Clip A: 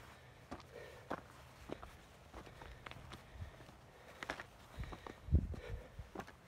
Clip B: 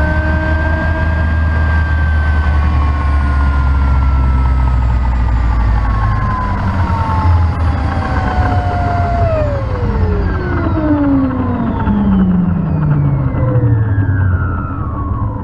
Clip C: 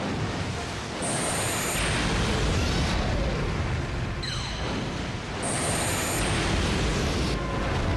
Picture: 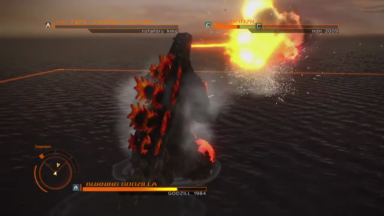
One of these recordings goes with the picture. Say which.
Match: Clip C